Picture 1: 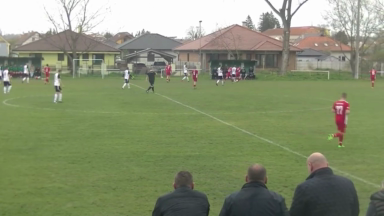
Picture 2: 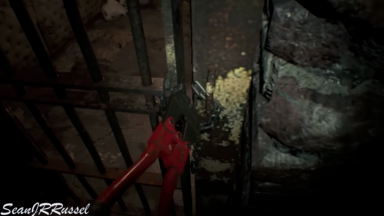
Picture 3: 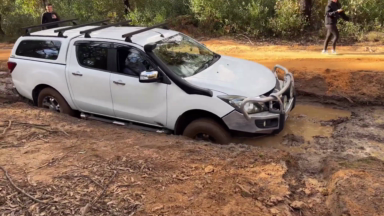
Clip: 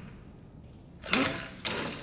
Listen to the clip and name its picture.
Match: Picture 2